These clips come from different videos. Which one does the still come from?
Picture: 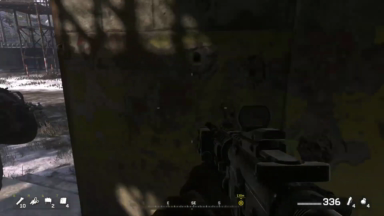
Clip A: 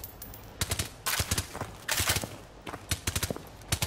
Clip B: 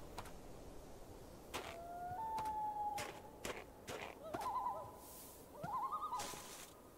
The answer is A